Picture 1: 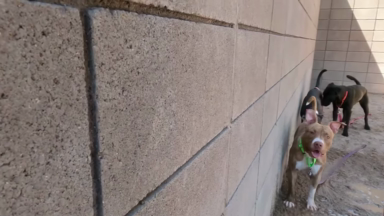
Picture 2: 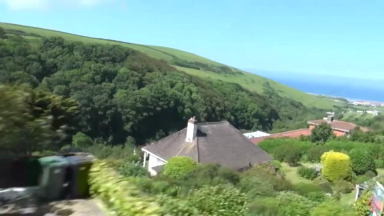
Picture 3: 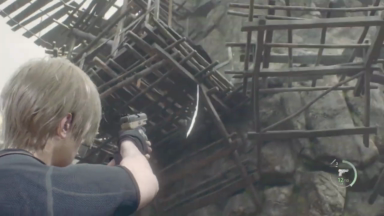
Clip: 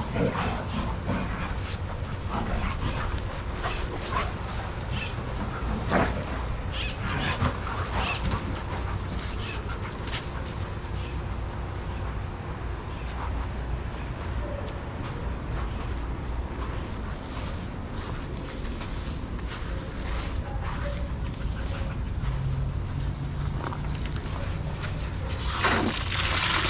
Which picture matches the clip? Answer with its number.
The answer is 1